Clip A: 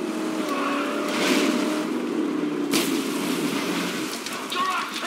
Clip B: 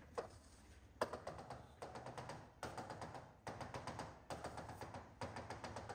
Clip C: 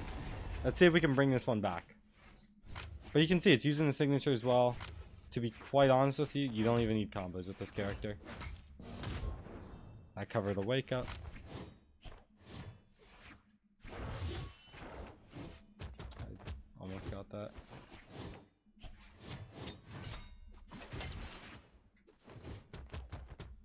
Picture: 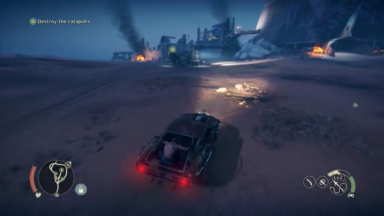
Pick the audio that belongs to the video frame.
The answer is A